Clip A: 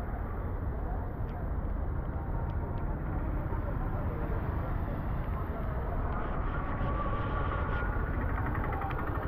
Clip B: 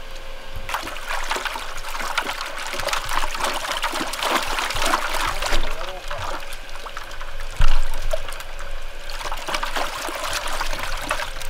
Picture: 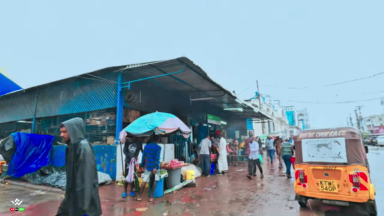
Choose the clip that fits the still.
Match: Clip A